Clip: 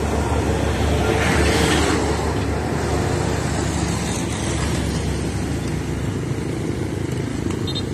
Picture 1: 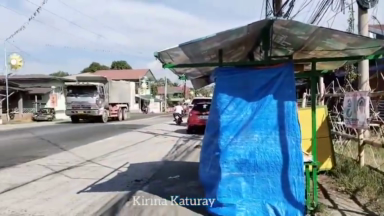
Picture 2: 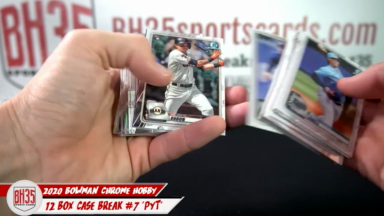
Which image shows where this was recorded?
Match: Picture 1